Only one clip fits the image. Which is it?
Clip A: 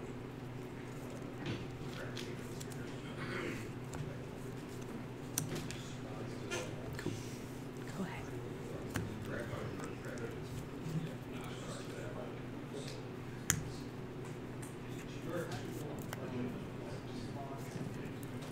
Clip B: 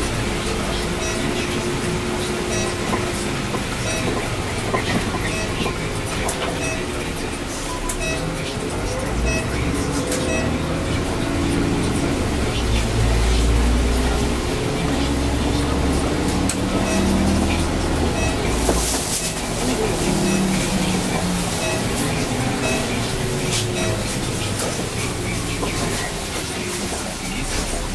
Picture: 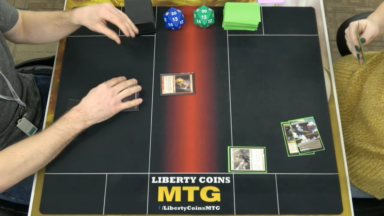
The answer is A